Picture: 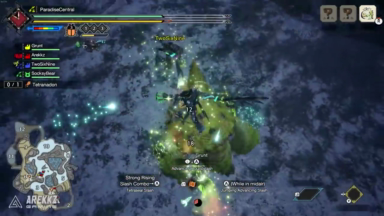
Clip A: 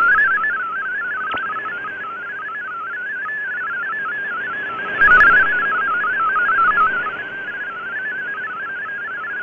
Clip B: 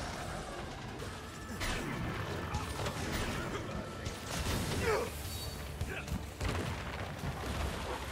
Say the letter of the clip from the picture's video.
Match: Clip B